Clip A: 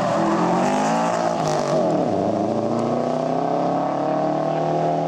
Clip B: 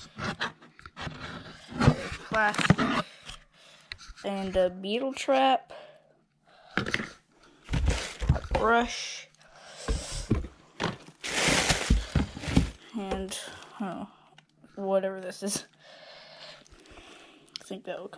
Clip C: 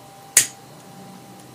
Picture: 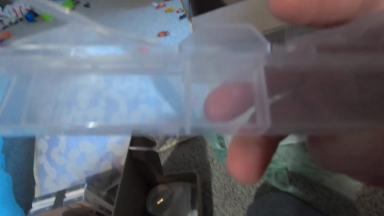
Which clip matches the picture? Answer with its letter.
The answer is B